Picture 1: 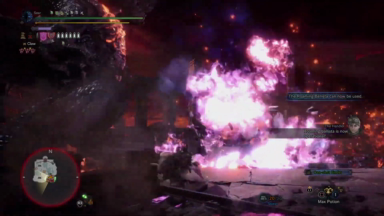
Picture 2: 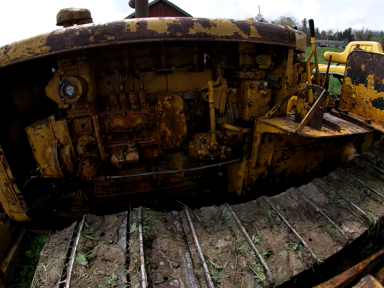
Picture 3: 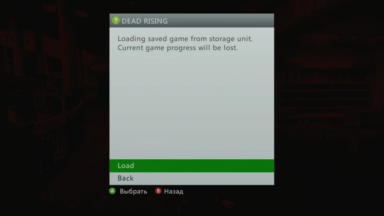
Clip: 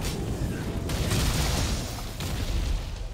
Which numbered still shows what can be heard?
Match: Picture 1